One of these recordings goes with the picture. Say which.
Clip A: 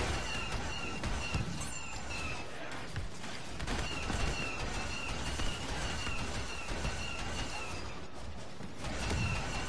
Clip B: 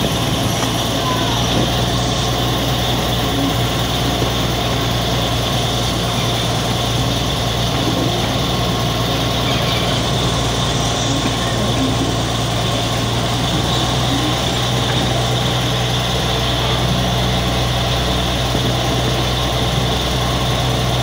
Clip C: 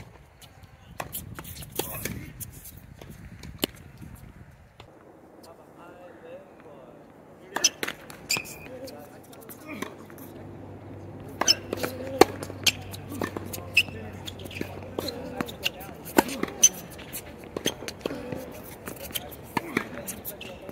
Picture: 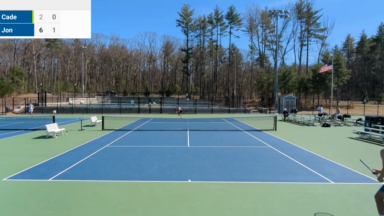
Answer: C